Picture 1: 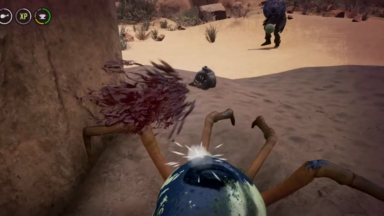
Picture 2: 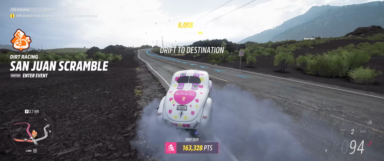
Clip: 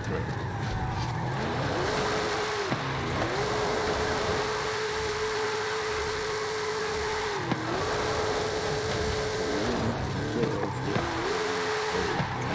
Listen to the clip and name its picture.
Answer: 2